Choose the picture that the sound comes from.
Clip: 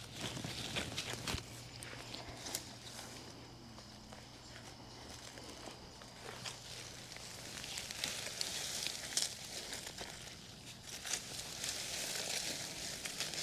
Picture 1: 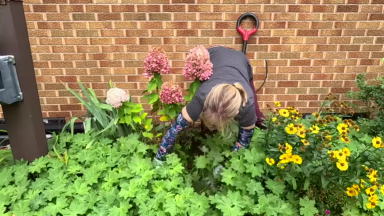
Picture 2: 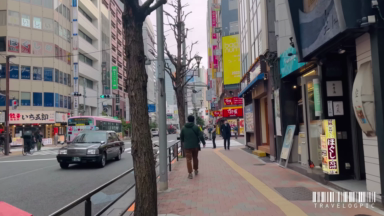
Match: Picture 1